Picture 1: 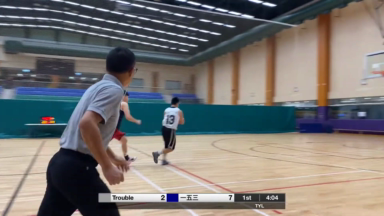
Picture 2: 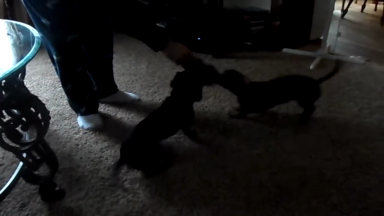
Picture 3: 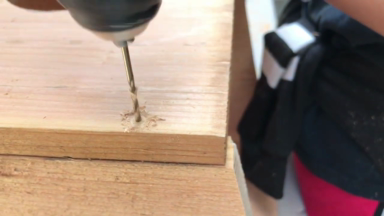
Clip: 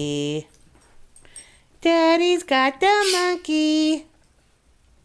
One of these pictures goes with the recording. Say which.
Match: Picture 2